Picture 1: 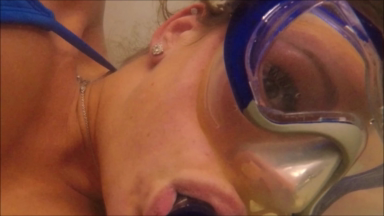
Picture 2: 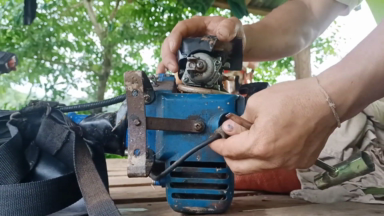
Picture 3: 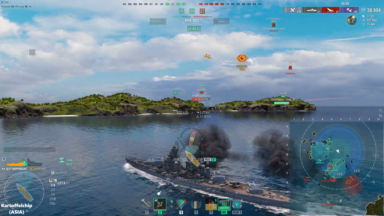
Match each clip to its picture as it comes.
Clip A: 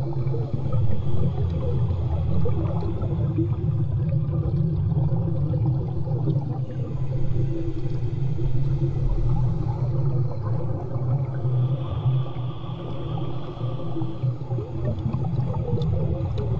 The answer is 1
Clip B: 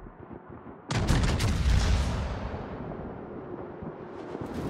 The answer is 3